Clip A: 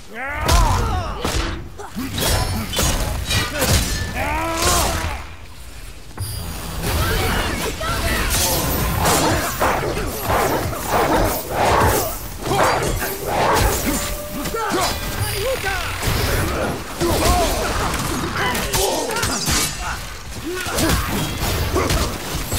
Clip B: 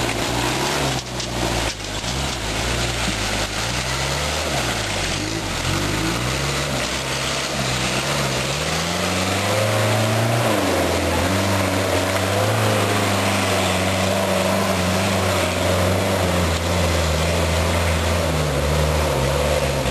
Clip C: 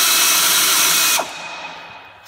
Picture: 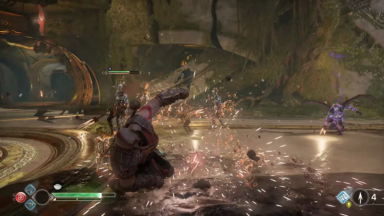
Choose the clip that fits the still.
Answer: A